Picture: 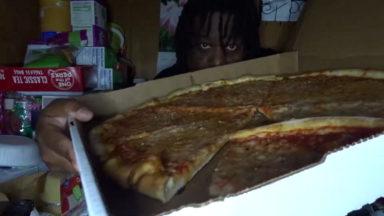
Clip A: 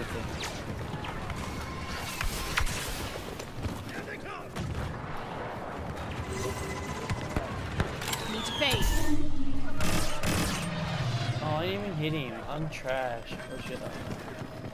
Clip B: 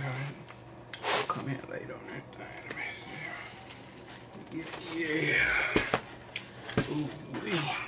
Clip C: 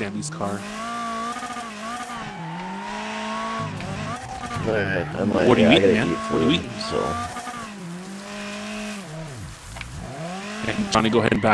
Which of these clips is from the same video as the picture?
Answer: B